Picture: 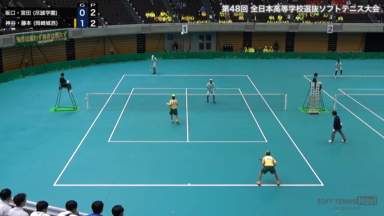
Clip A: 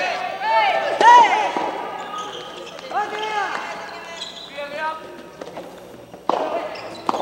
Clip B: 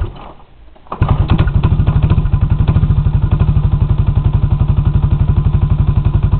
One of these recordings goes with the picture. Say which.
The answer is A